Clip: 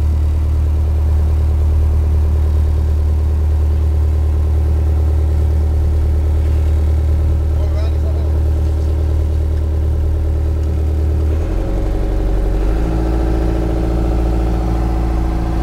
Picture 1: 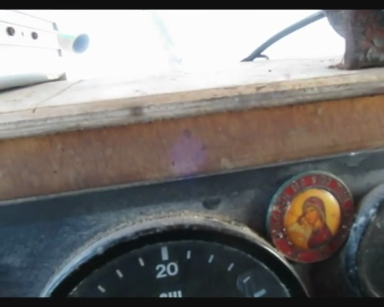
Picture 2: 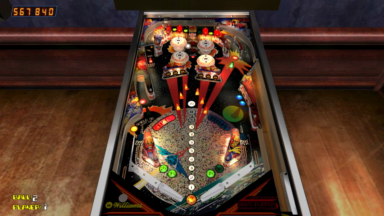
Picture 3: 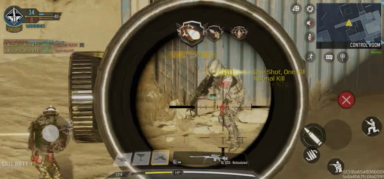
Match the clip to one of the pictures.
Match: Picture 1